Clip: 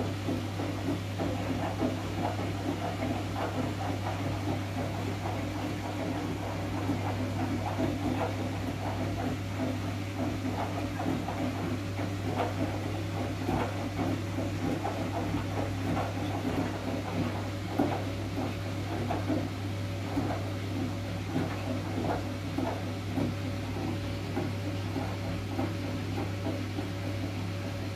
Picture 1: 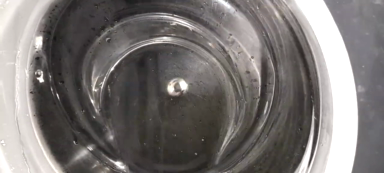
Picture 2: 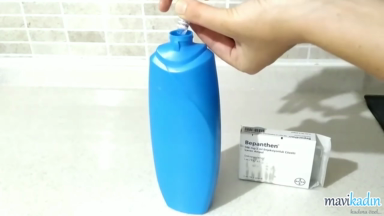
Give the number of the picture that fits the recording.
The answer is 1